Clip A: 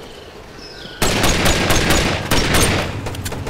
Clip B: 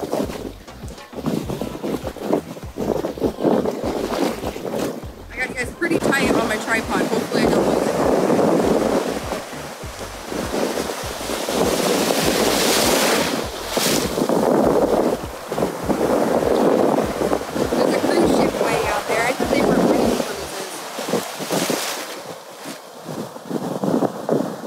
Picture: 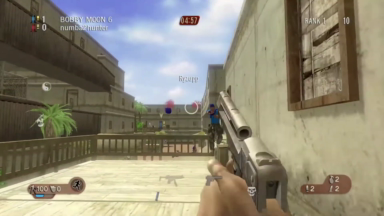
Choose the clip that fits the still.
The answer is A